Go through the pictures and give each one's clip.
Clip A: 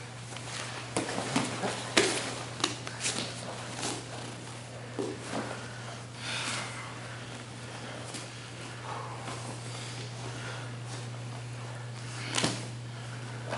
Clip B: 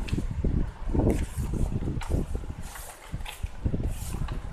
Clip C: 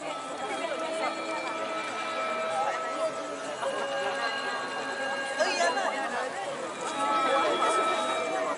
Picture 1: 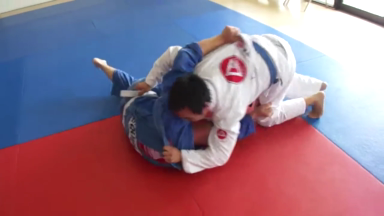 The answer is A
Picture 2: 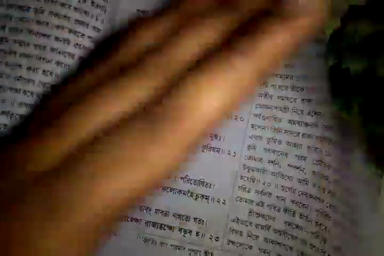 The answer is B